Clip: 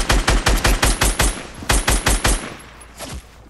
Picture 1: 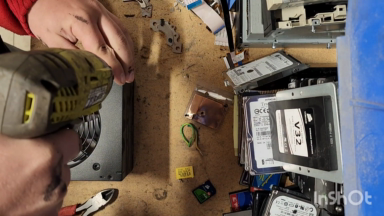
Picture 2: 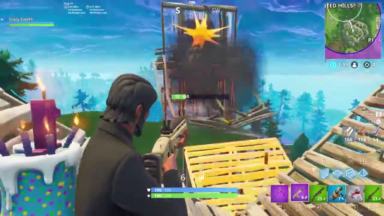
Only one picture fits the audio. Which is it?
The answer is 2